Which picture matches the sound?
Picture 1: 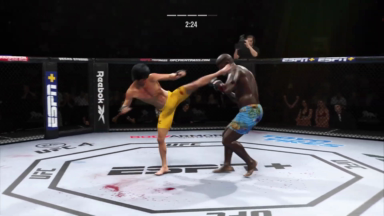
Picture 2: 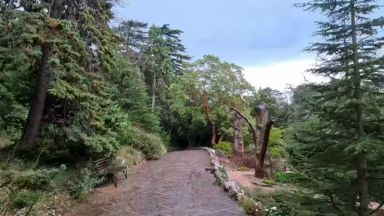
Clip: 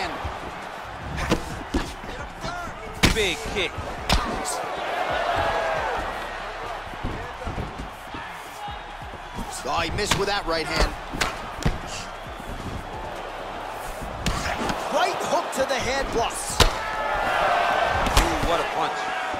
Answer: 1